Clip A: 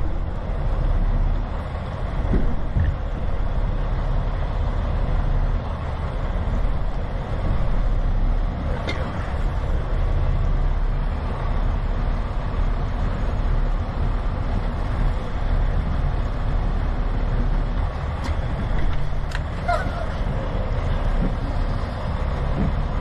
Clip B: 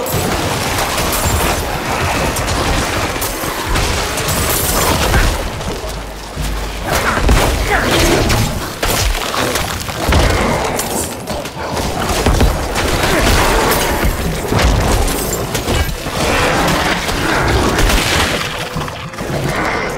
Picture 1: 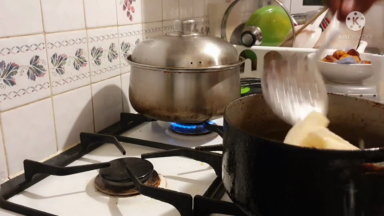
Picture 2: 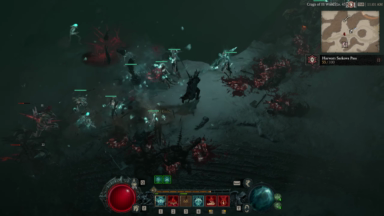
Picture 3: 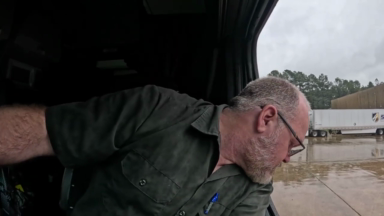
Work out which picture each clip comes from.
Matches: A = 3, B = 2